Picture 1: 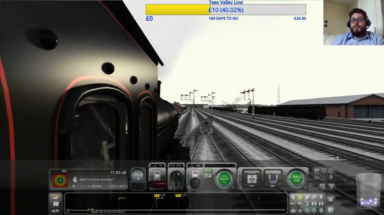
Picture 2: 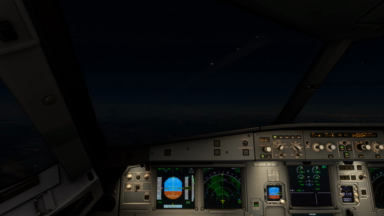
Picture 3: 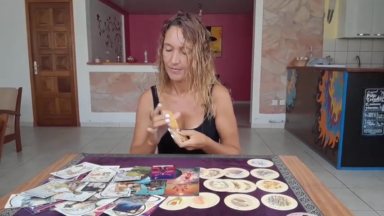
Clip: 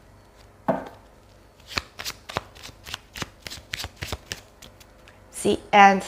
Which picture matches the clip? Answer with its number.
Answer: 3